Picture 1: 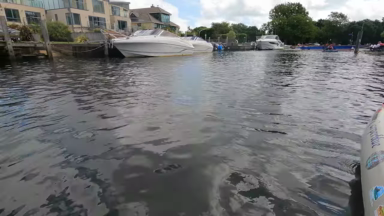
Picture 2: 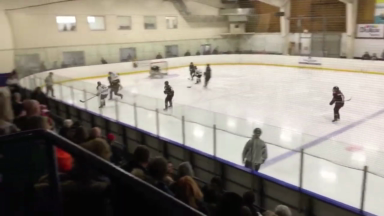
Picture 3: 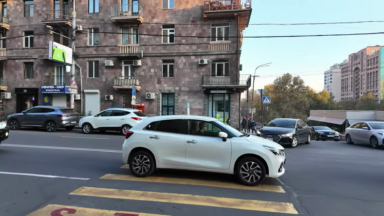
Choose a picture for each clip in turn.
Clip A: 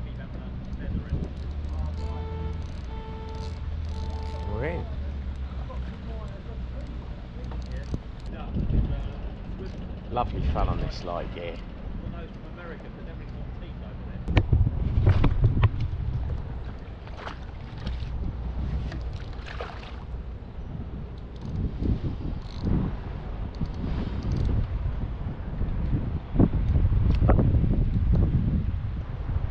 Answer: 1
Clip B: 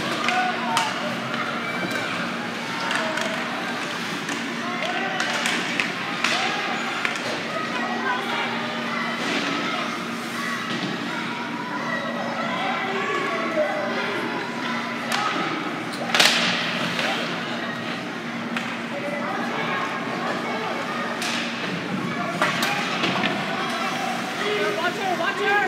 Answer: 2